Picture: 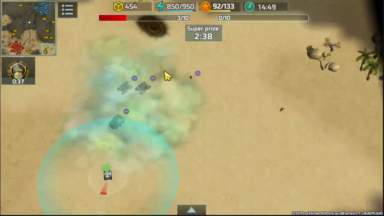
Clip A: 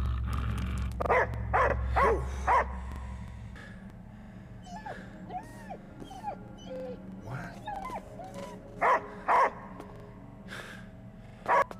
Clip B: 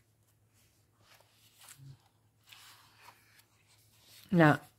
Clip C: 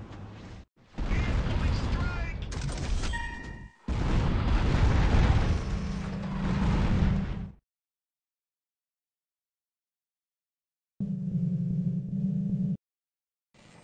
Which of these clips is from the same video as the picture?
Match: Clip C